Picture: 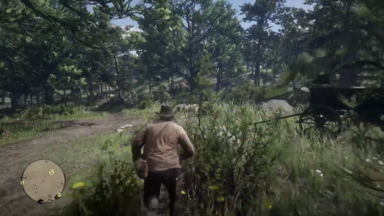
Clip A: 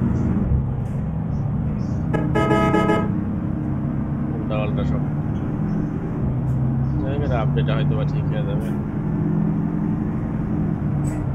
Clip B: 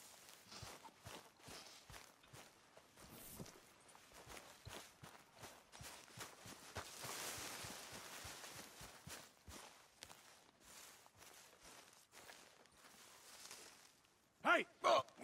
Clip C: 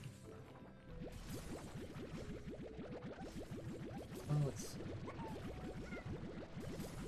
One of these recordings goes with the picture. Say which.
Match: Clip B